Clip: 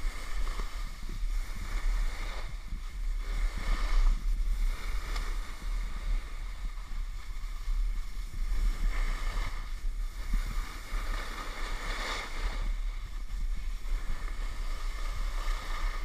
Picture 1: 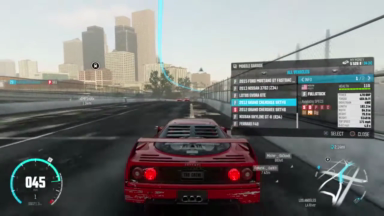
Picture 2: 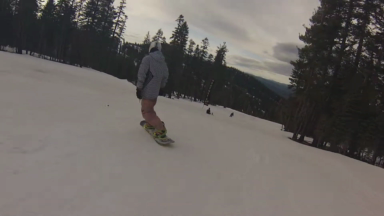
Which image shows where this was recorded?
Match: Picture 2